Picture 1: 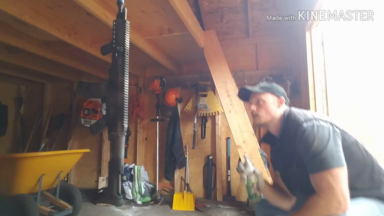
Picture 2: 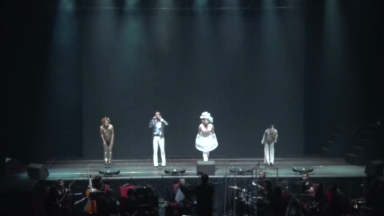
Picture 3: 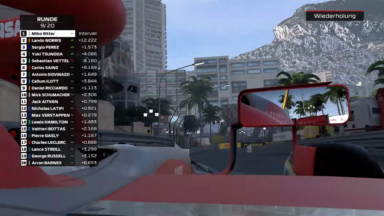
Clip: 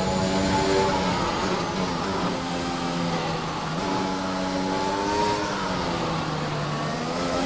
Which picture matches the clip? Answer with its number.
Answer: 3